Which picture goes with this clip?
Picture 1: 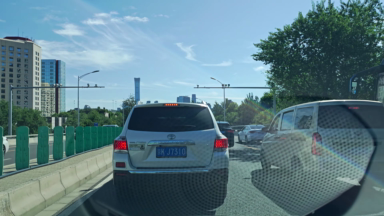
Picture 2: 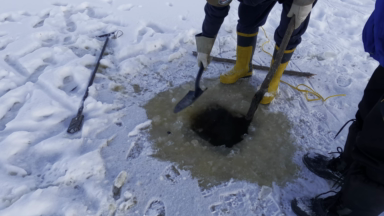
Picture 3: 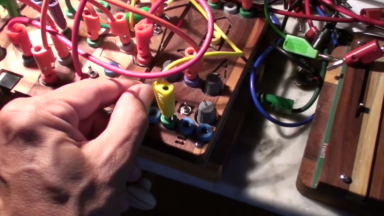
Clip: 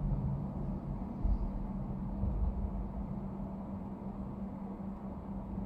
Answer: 1